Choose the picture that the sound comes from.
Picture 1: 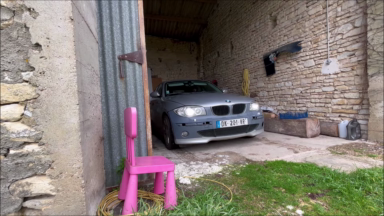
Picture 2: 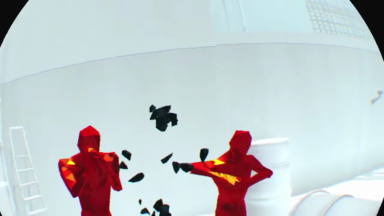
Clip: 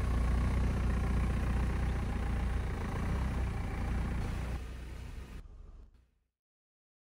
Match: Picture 1